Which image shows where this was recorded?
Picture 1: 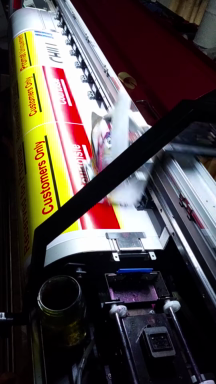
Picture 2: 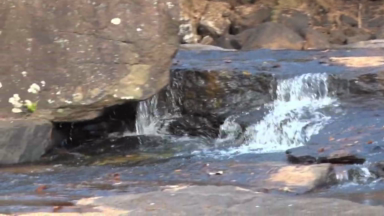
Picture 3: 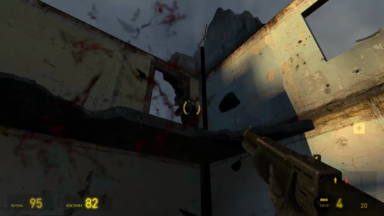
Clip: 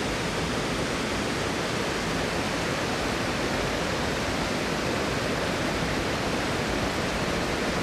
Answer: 2